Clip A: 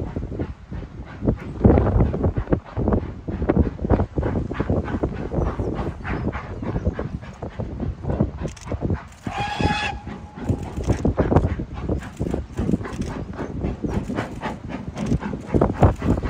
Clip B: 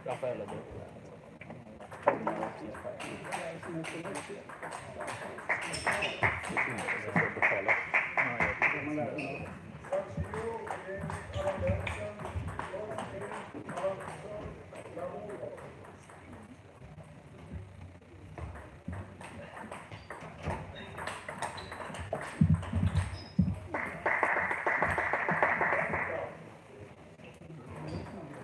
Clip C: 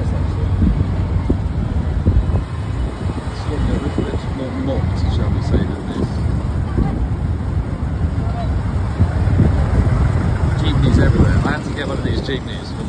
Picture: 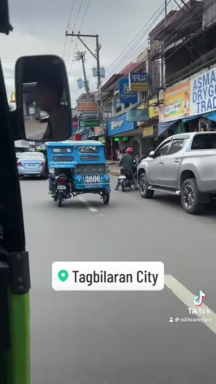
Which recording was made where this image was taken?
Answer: C